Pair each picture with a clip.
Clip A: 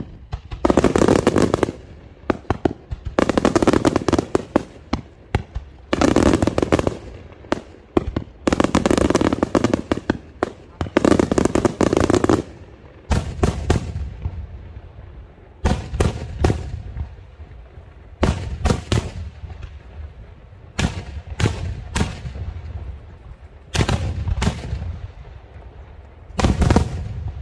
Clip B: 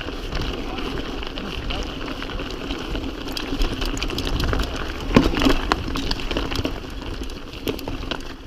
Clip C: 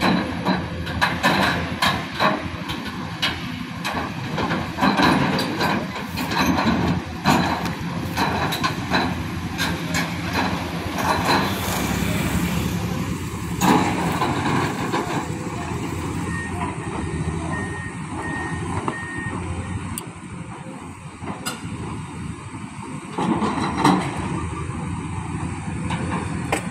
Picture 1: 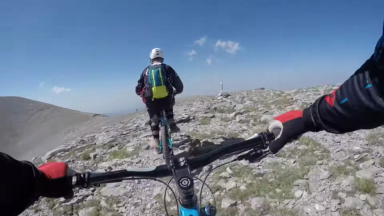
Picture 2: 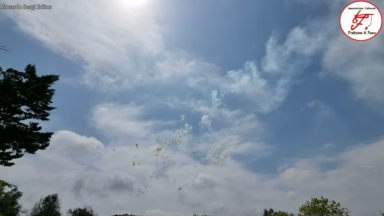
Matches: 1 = B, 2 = A